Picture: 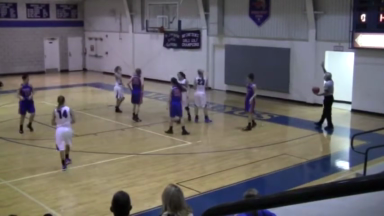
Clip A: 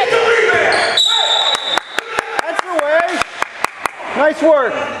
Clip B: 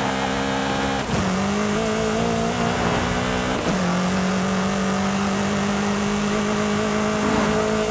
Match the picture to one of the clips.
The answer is A